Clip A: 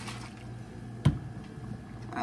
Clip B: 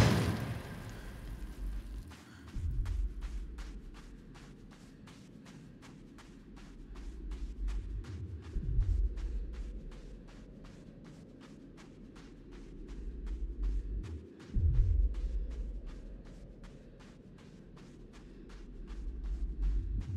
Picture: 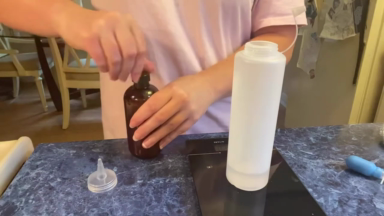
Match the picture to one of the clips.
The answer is A